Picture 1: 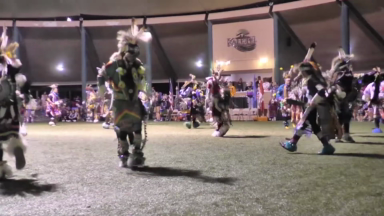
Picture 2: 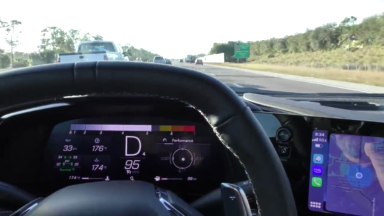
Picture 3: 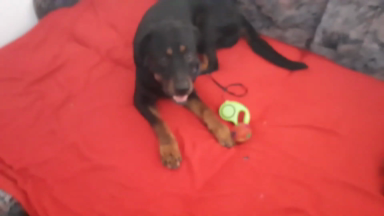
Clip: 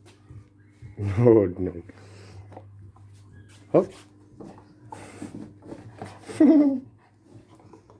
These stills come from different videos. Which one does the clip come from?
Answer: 3